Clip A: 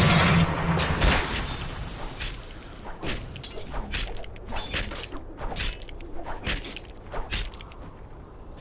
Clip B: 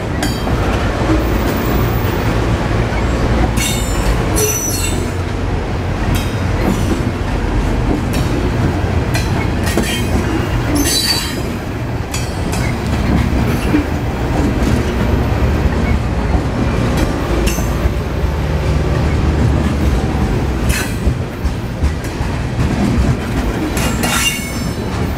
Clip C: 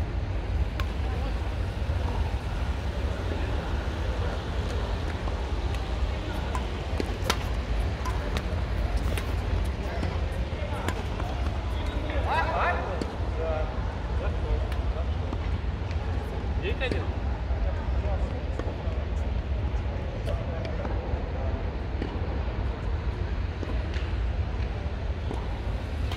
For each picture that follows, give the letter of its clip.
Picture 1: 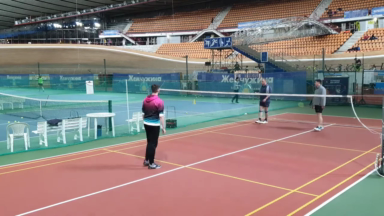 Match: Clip C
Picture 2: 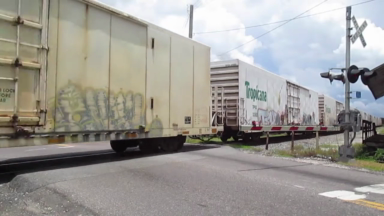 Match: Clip B